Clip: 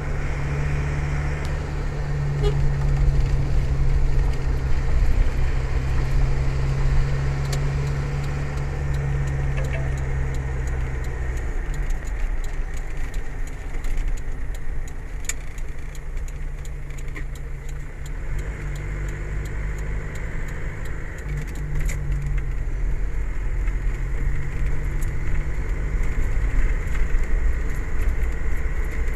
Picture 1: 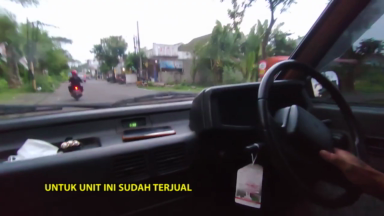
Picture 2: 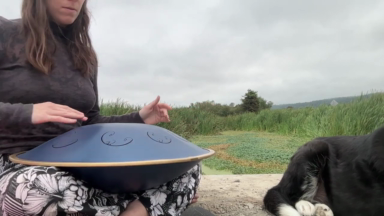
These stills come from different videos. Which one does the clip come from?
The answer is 1